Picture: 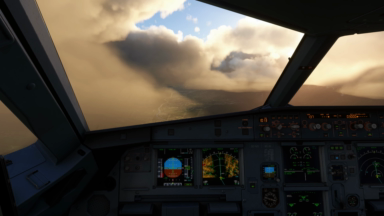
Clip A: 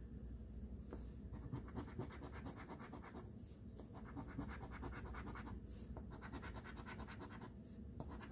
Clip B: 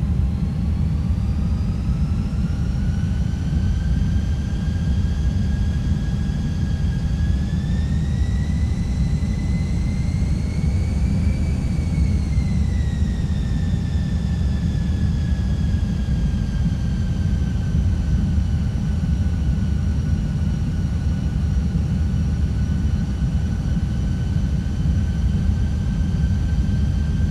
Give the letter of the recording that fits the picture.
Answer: B